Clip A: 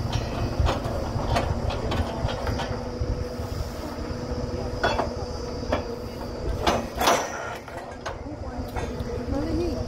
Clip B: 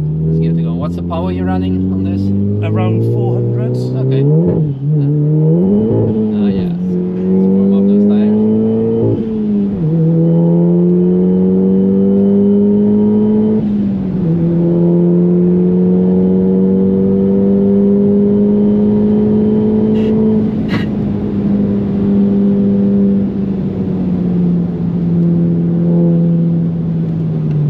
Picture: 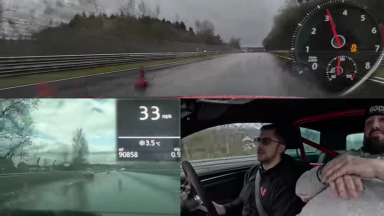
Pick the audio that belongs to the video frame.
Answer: B